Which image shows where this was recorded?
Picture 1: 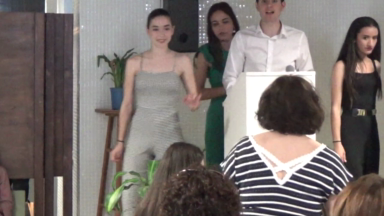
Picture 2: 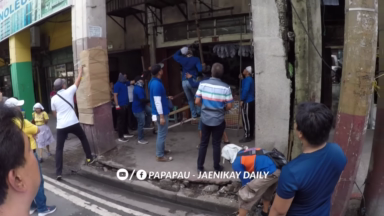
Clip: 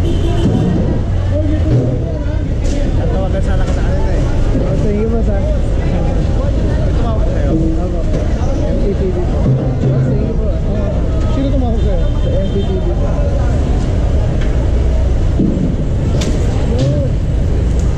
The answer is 2